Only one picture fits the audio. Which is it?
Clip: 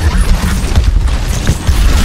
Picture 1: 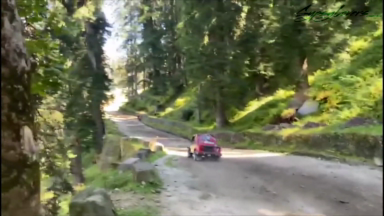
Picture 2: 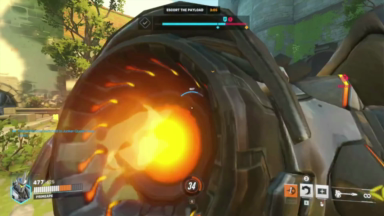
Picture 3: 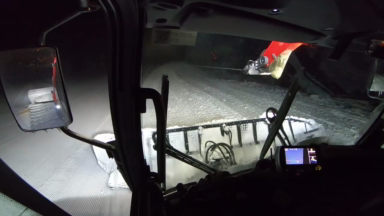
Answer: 2